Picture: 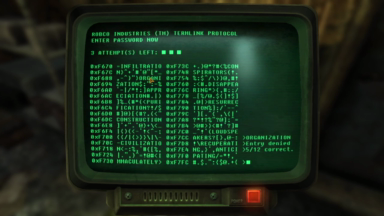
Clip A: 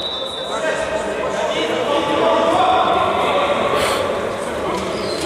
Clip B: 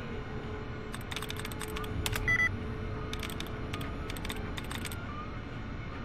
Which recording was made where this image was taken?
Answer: B